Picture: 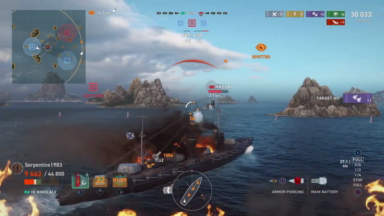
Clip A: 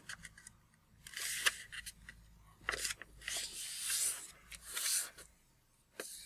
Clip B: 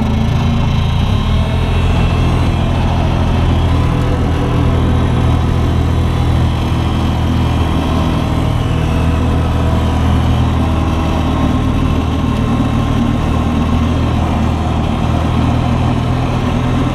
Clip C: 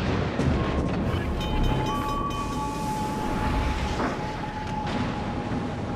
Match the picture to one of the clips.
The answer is C